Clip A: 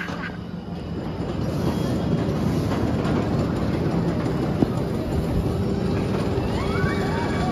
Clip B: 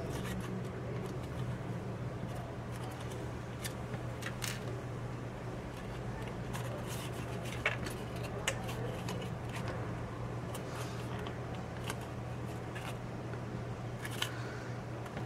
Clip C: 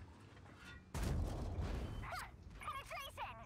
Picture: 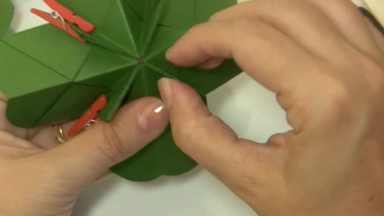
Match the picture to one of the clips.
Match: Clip B